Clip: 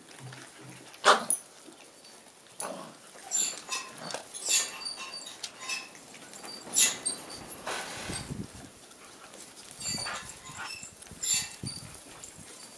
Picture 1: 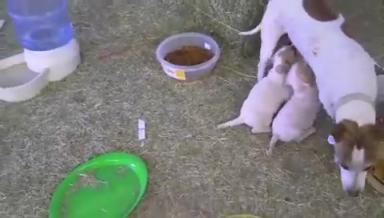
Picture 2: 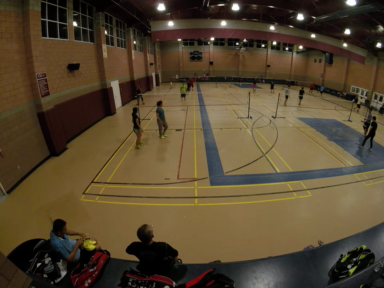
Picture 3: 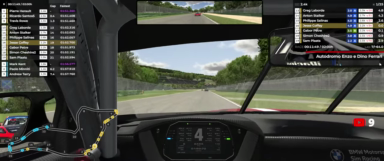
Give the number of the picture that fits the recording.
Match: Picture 1